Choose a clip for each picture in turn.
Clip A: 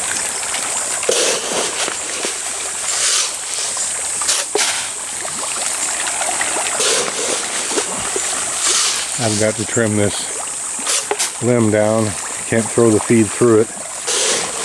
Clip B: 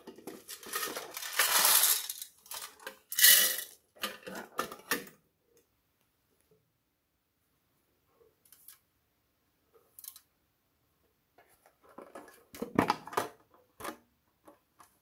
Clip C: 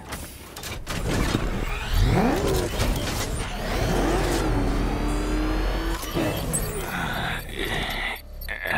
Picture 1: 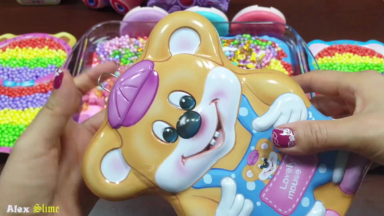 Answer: B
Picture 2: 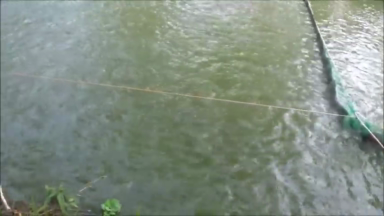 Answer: A